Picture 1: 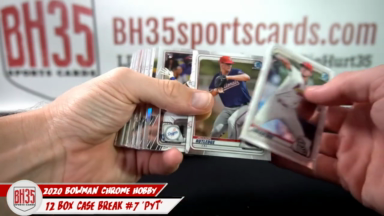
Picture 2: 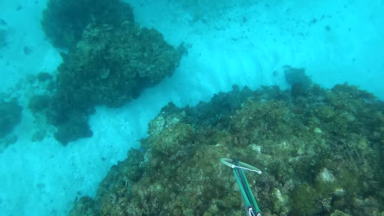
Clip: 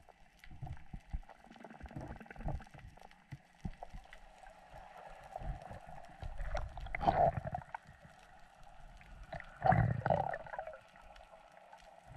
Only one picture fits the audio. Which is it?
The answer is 2